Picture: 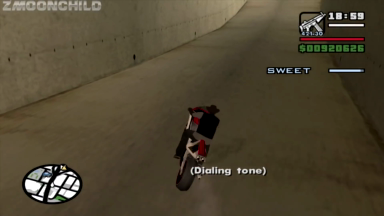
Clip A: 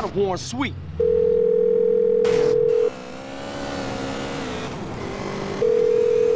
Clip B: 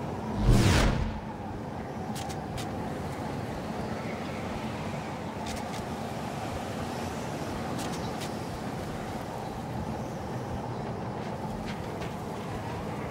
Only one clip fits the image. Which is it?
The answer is A